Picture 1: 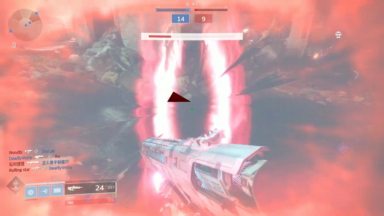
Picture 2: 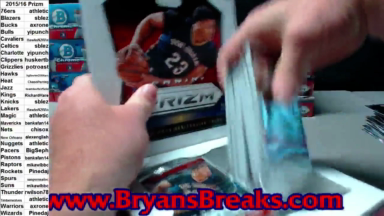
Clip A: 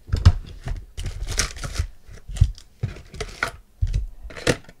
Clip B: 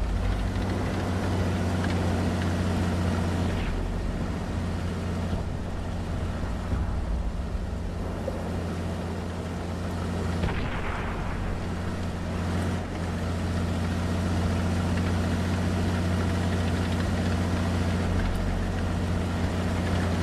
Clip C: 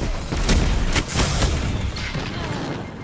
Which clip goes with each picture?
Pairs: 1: C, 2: A